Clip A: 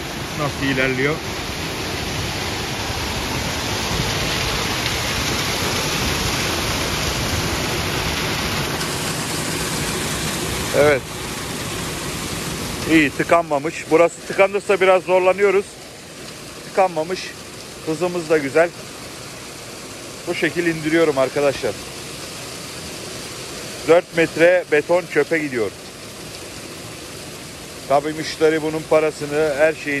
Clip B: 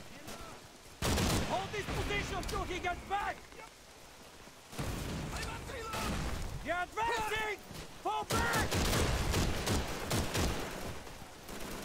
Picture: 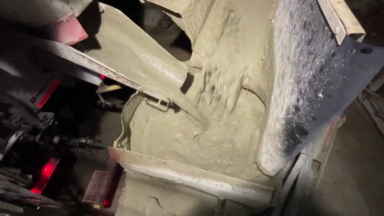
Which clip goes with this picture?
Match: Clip A